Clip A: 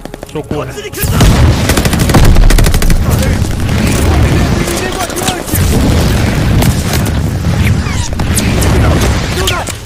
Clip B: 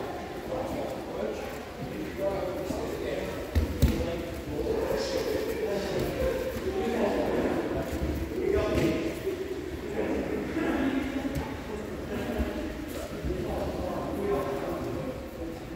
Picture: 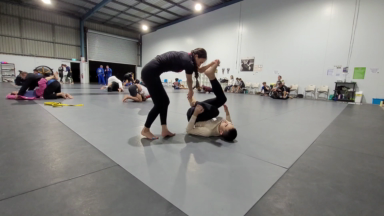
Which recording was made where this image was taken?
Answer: B